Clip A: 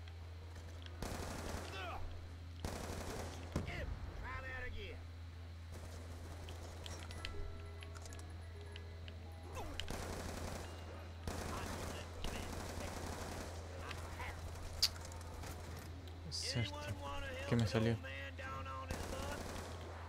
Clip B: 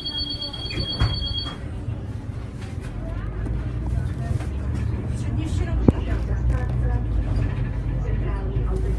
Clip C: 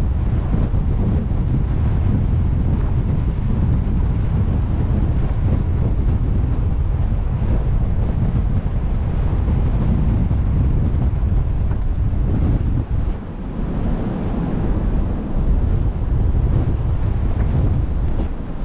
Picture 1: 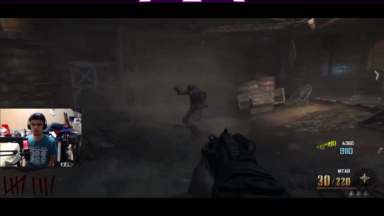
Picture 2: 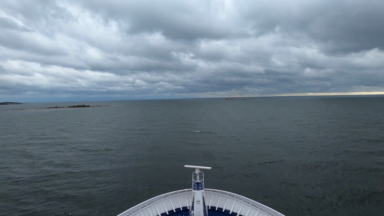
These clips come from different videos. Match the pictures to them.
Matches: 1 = A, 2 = C